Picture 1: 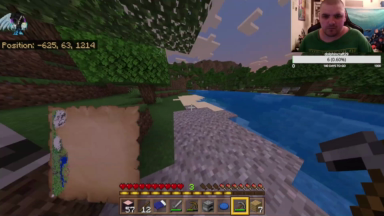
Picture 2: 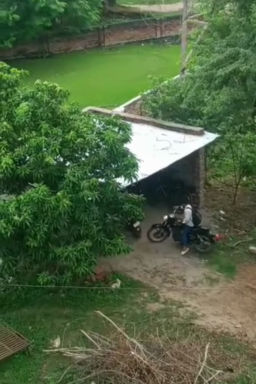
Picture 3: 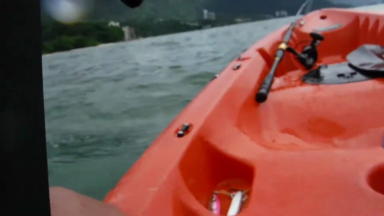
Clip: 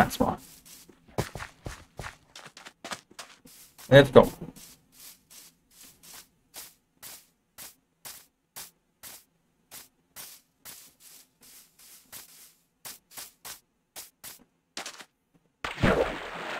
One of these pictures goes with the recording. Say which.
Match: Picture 1